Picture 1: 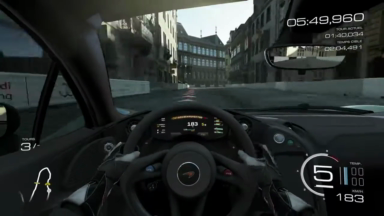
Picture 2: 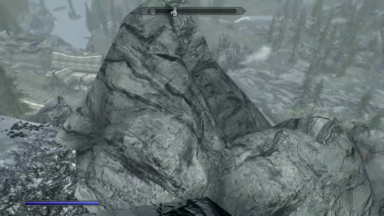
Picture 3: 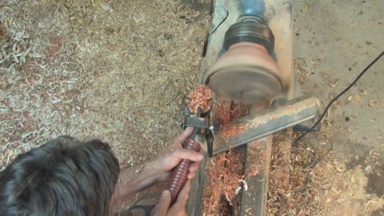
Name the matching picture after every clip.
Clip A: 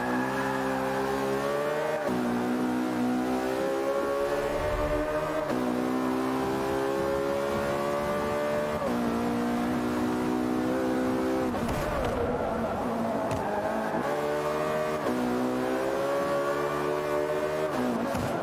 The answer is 1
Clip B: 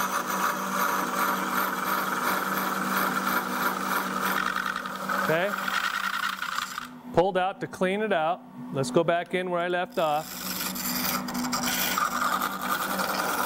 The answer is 3